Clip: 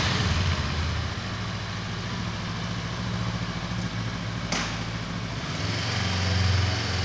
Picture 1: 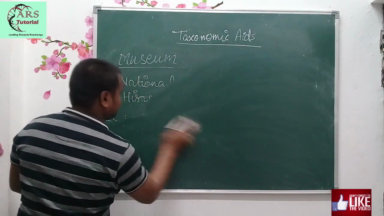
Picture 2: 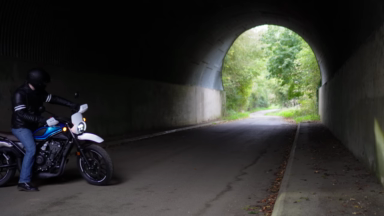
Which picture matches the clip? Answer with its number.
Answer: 2